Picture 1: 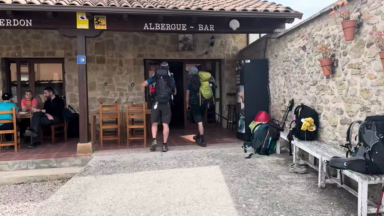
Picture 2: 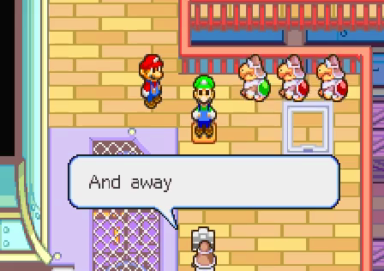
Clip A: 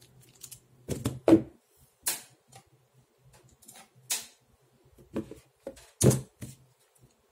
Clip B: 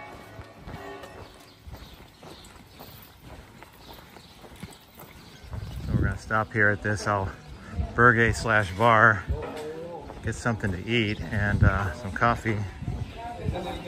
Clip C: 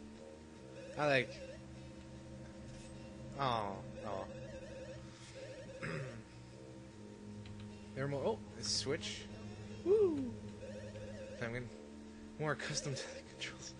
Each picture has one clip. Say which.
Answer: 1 B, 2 C